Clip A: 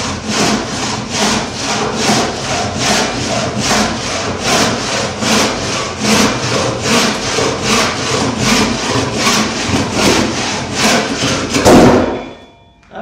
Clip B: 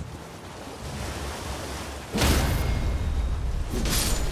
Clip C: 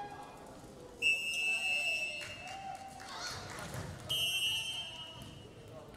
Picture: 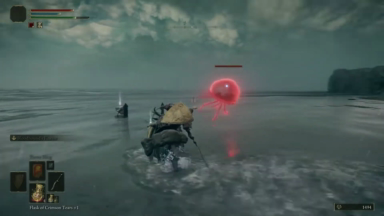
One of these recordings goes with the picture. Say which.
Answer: B